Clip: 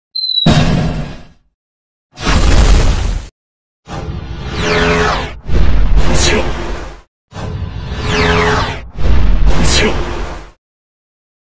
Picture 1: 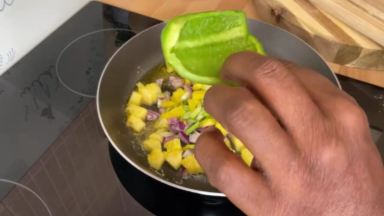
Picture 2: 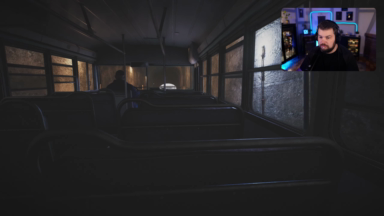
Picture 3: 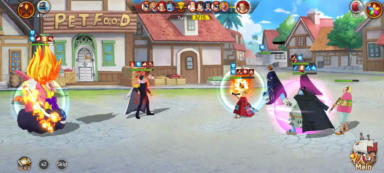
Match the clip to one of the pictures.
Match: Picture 3